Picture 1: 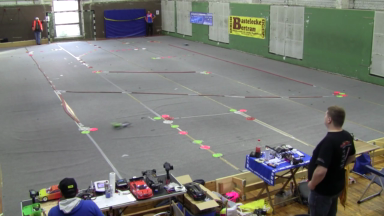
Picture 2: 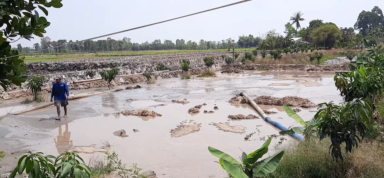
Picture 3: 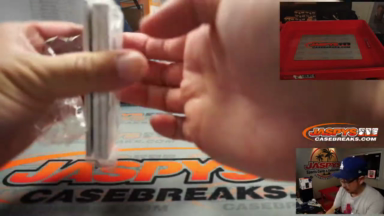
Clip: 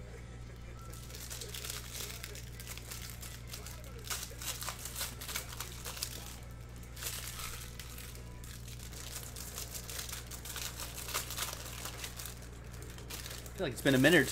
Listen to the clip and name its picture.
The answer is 3